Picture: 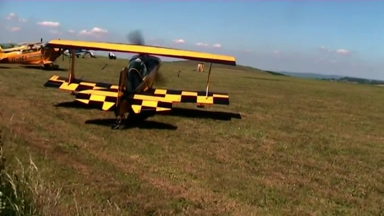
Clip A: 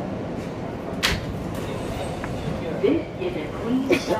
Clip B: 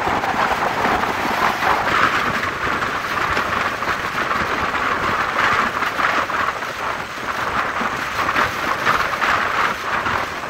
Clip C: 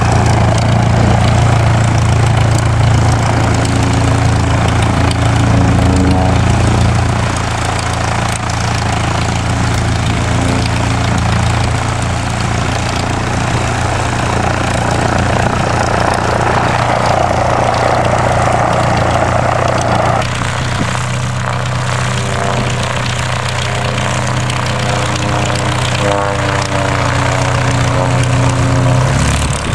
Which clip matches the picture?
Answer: C